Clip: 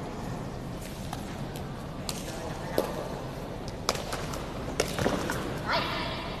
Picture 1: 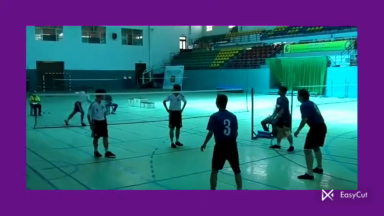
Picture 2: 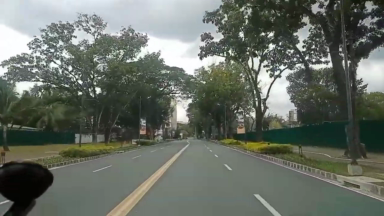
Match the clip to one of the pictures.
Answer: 1